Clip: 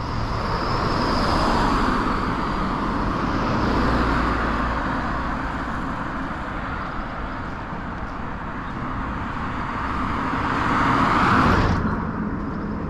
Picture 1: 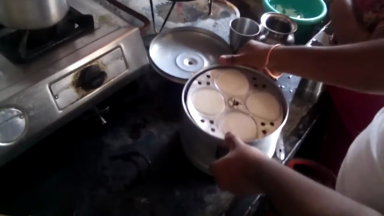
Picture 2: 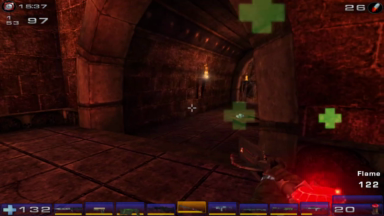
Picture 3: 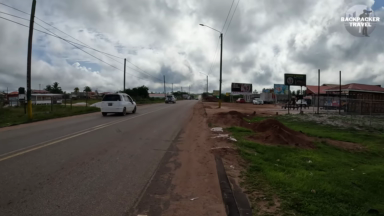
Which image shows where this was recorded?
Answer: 3